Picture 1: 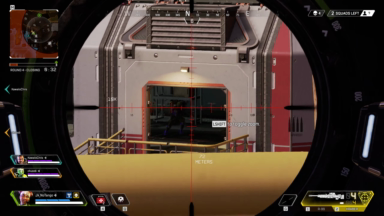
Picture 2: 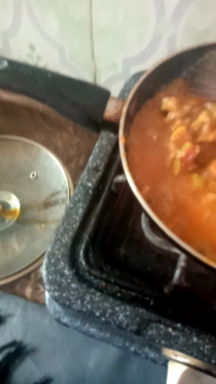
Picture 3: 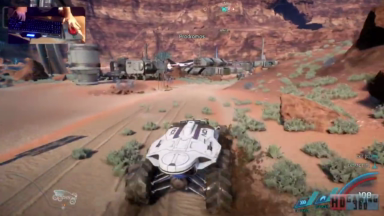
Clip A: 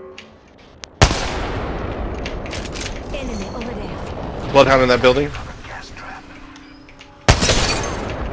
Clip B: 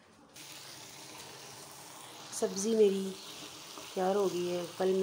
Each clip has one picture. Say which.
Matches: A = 1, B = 2